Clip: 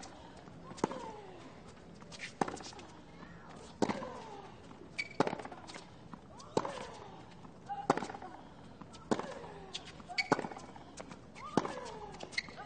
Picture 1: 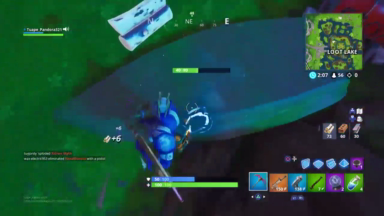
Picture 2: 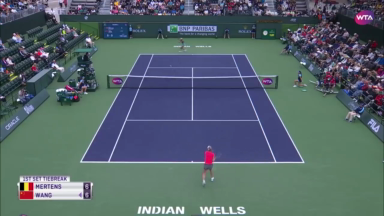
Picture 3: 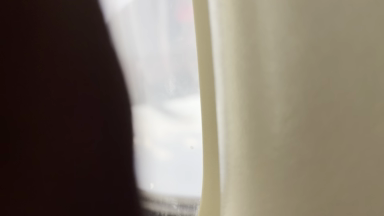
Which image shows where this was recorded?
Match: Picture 2